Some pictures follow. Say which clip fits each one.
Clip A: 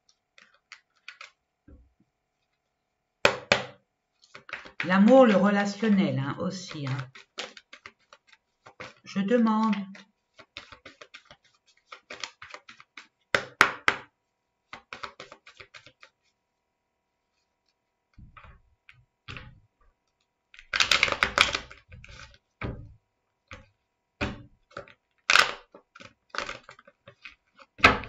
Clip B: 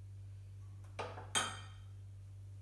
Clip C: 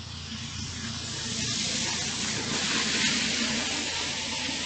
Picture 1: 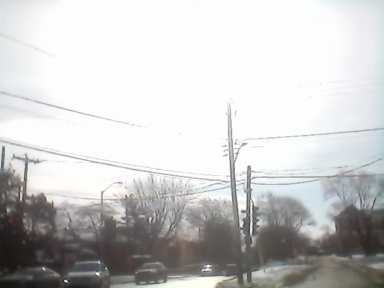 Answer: C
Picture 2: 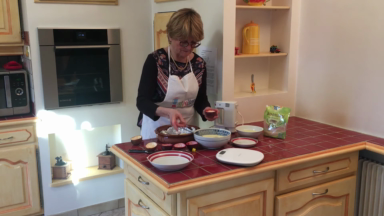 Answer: B